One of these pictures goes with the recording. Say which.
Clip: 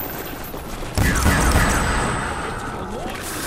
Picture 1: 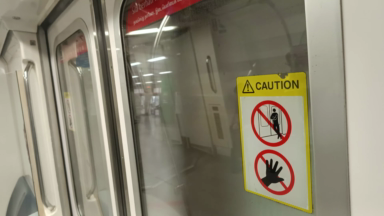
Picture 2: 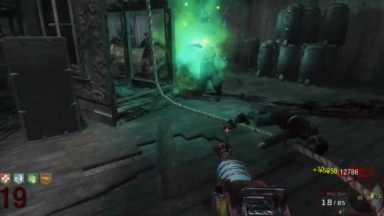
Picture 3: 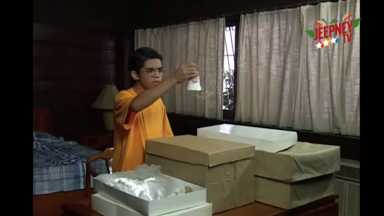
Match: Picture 2